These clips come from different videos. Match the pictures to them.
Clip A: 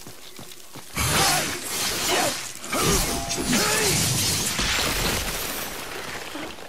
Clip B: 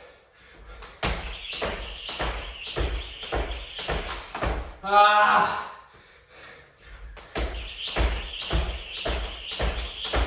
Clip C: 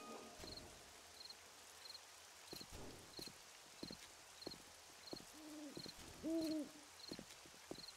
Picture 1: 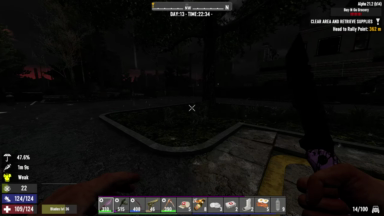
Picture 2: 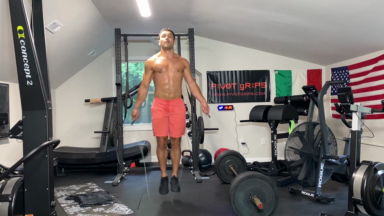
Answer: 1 C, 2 B